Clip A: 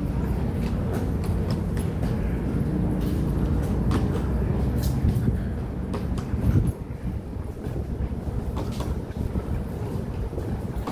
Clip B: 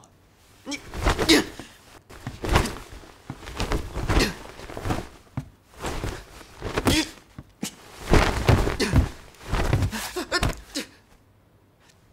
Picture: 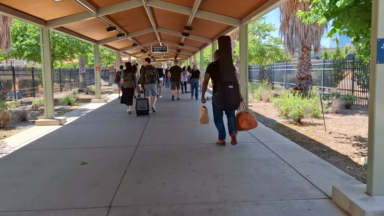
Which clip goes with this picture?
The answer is A